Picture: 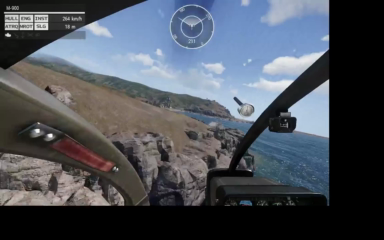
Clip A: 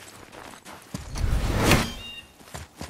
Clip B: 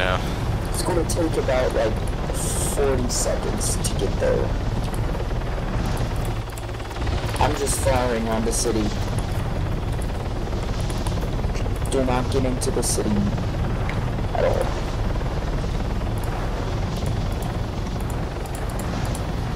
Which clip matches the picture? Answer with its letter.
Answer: B